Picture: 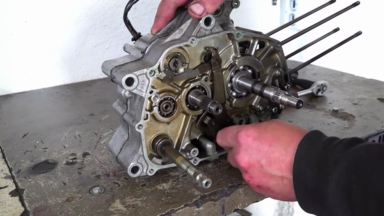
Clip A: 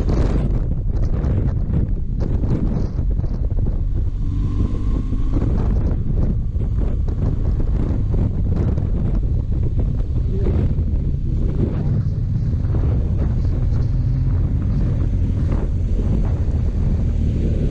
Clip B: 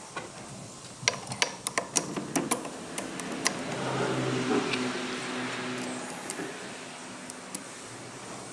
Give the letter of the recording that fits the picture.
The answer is B